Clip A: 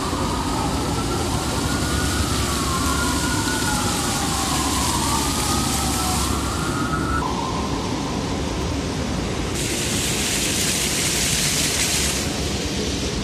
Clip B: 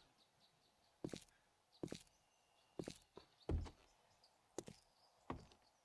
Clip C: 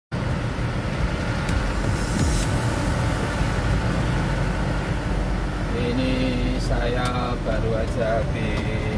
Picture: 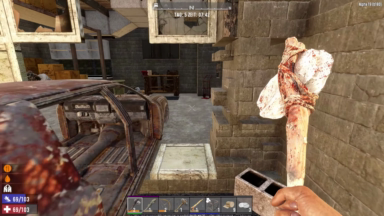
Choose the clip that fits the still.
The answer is B